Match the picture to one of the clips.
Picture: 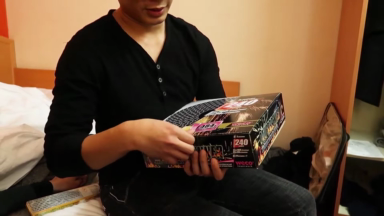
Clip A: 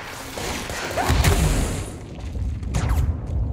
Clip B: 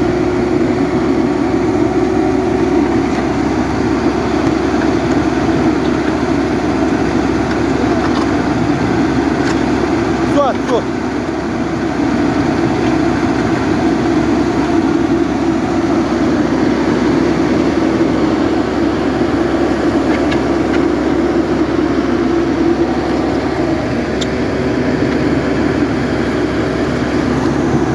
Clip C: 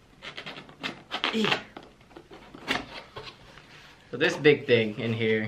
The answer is C